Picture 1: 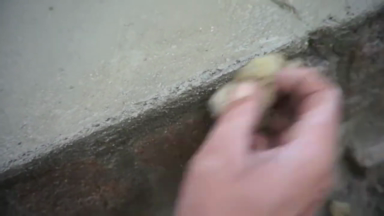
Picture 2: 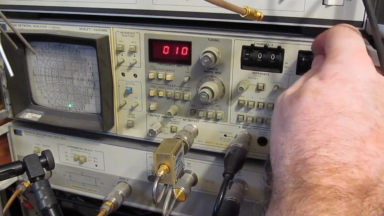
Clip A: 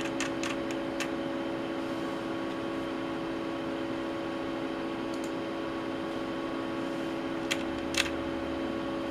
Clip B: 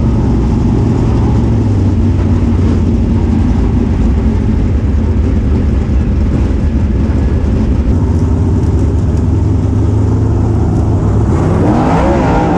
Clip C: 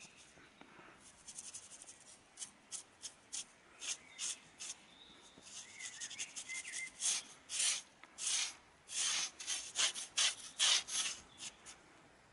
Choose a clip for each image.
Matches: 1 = C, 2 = A